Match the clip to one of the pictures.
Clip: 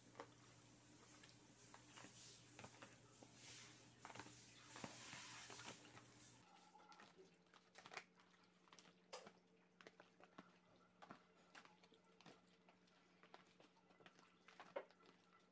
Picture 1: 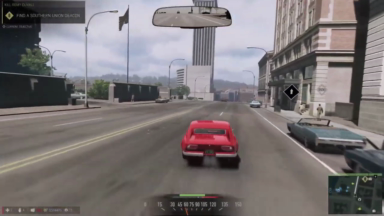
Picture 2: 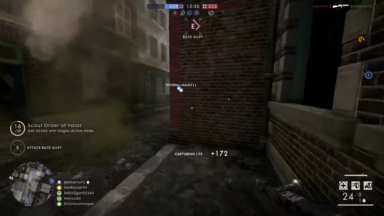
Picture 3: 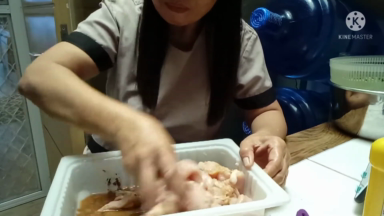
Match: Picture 3